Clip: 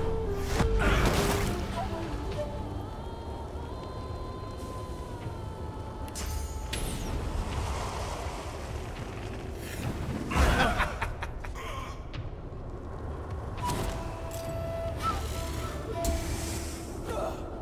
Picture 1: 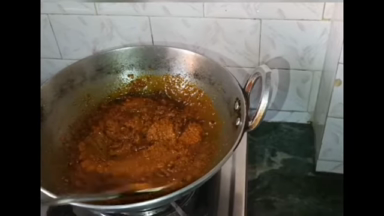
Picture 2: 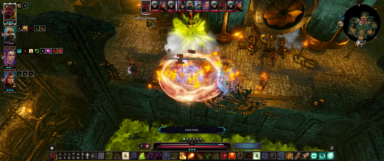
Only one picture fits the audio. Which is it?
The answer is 2